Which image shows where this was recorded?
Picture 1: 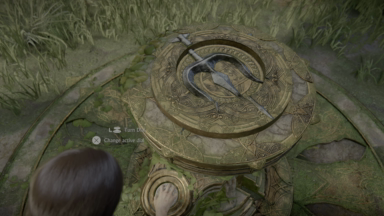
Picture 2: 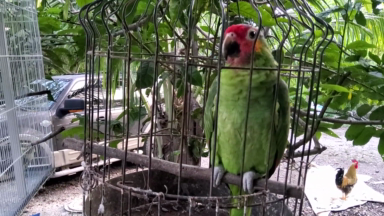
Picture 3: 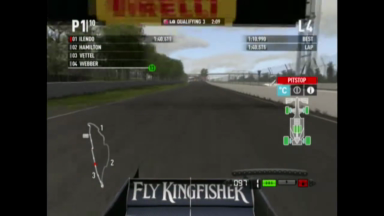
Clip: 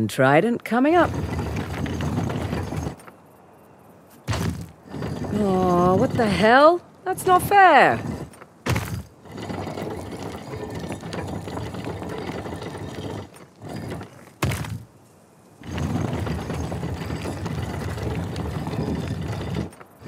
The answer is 1